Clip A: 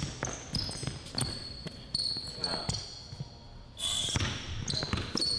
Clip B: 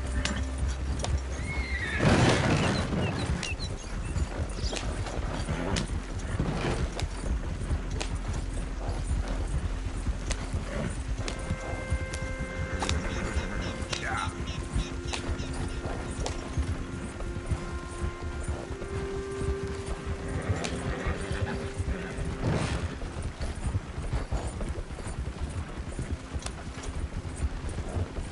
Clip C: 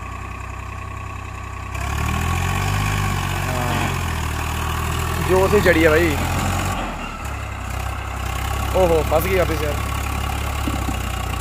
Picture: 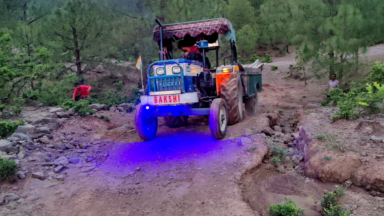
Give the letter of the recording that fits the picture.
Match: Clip C